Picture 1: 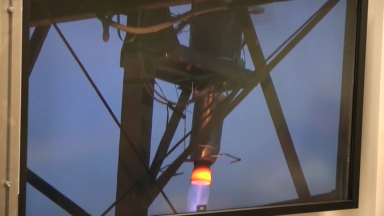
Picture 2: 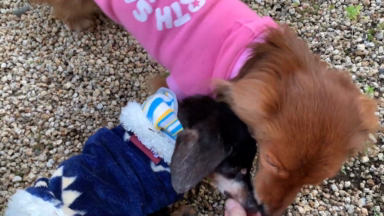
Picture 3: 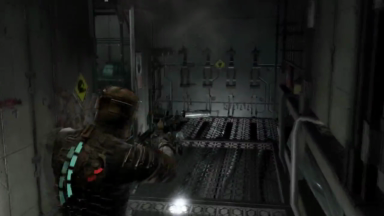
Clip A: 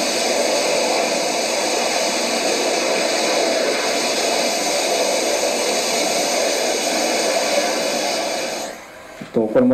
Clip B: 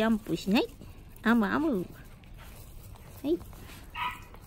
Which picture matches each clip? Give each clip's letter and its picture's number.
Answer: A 1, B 2